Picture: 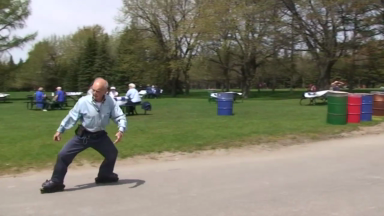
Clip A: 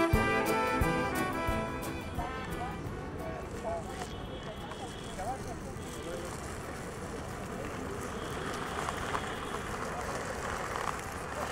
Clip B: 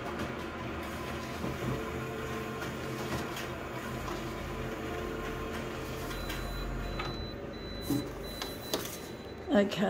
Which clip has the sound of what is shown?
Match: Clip A